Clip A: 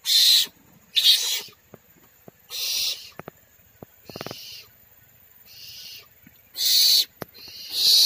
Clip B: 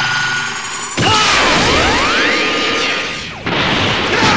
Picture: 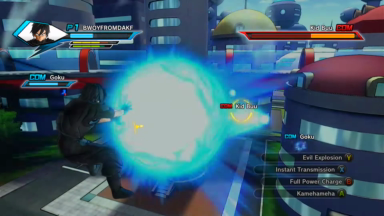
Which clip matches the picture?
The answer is B